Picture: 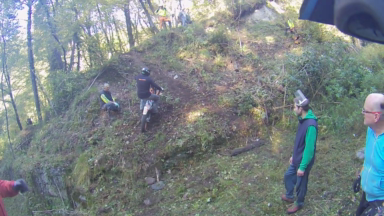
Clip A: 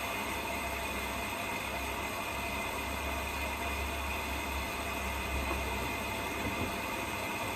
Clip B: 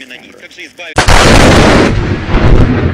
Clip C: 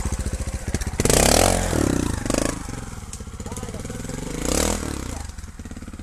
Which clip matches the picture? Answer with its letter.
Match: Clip C